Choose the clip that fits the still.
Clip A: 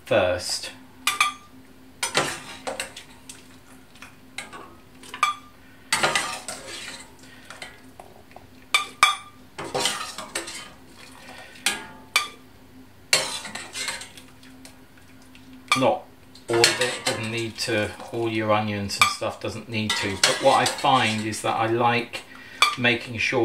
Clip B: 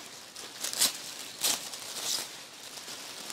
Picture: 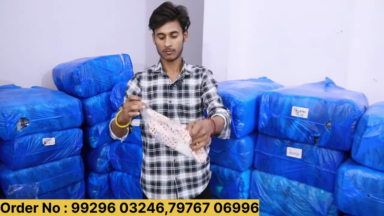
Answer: B